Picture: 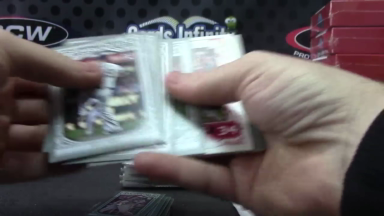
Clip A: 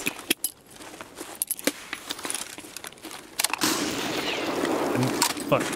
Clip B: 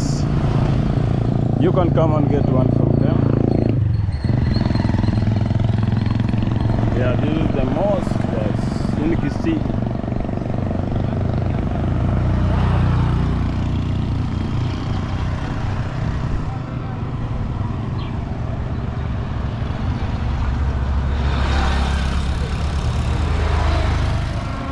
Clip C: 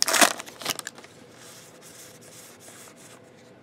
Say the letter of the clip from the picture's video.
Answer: C